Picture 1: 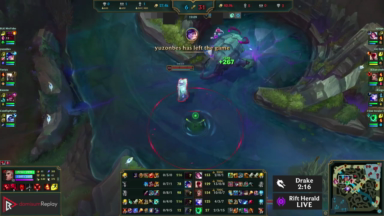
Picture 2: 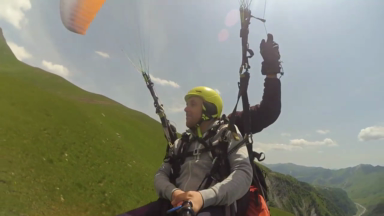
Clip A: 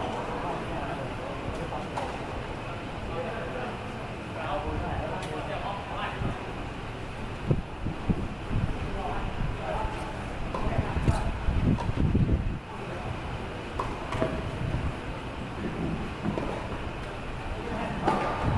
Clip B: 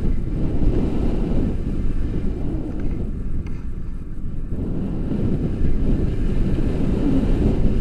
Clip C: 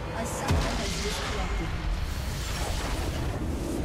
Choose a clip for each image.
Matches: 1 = C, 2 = B